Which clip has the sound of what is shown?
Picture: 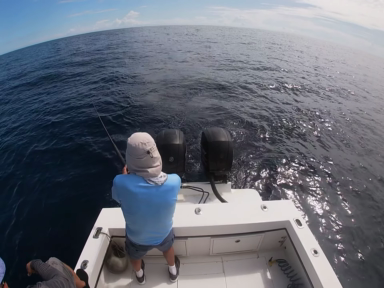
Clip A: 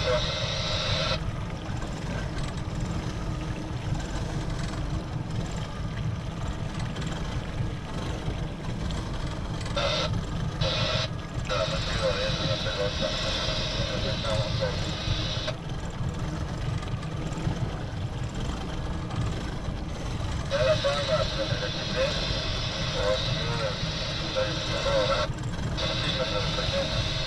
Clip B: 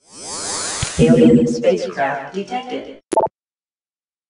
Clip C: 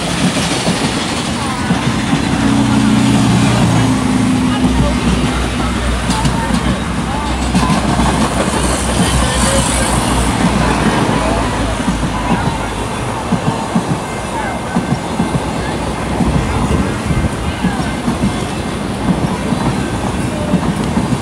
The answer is A